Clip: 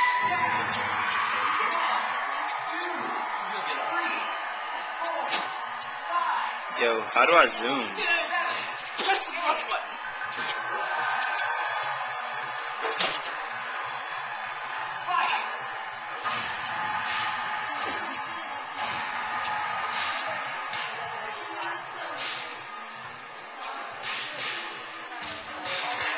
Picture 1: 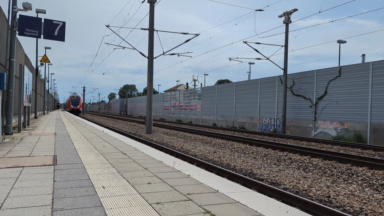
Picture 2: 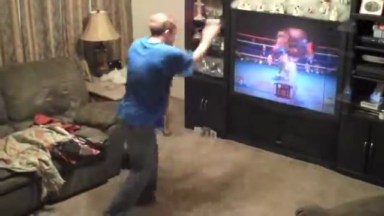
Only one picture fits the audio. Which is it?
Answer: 2